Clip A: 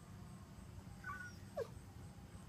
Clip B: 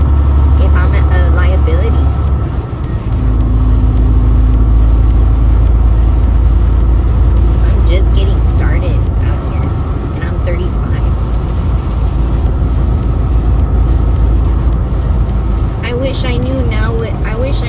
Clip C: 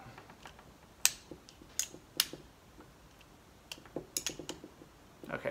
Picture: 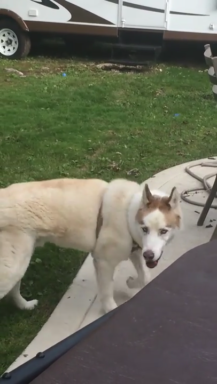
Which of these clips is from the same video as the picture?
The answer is A